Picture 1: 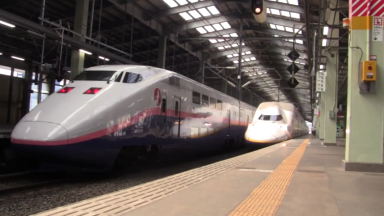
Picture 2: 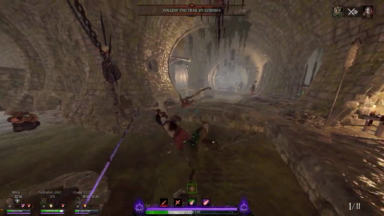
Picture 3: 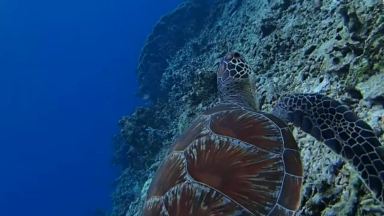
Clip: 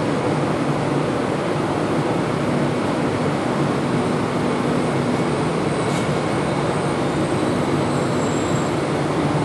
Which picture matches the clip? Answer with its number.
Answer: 1